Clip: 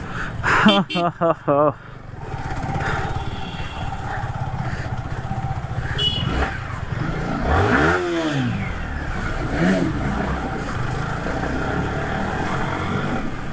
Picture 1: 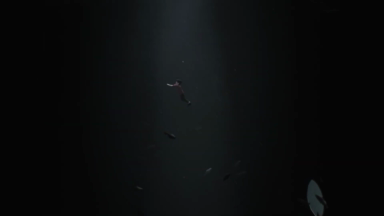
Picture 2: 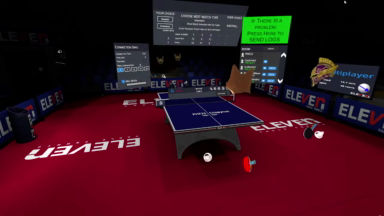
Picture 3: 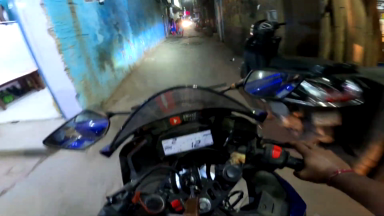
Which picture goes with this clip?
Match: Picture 3